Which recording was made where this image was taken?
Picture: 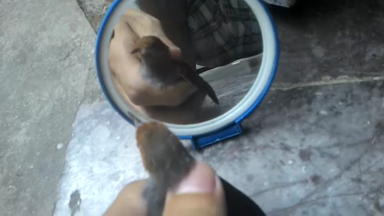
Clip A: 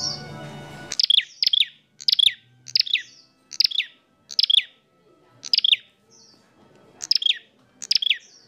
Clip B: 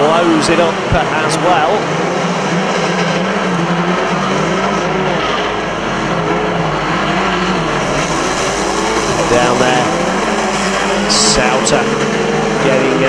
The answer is A